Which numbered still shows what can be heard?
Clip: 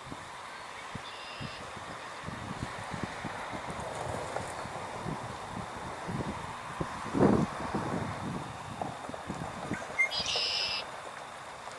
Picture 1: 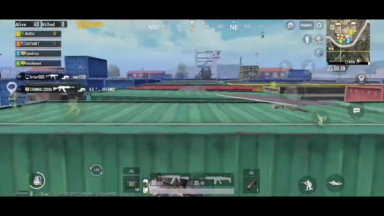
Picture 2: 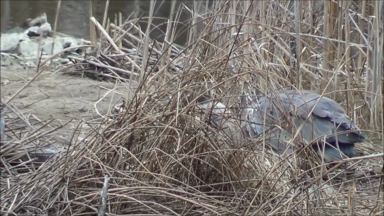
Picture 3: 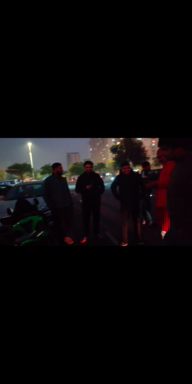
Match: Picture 2